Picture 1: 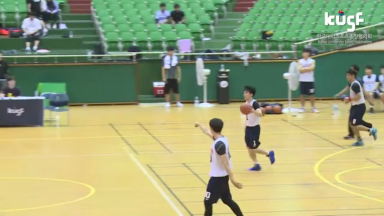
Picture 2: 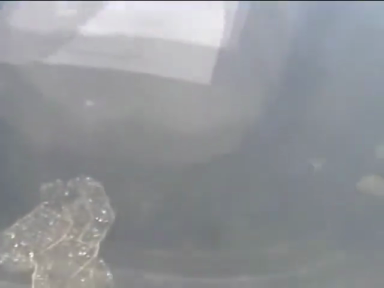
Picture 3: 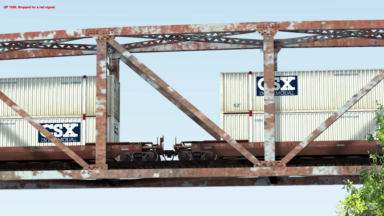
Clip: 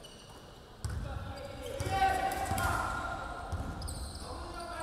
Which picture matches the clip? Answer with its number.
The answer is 1